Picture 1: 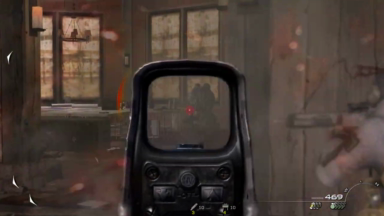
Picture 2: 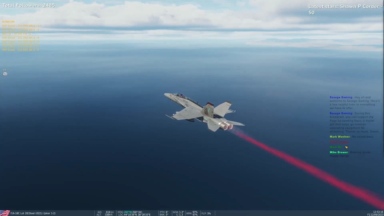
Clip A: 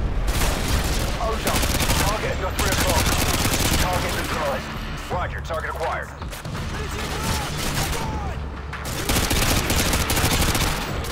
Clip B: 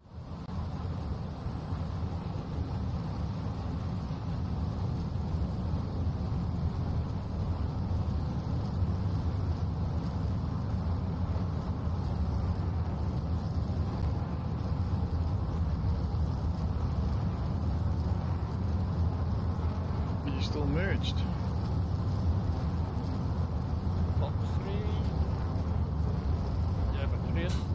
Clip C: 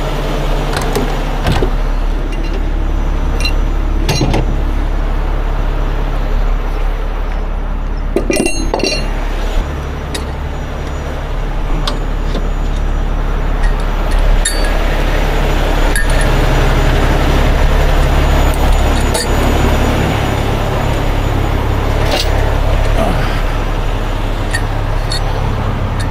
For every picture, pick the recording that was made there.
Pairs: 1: A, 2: B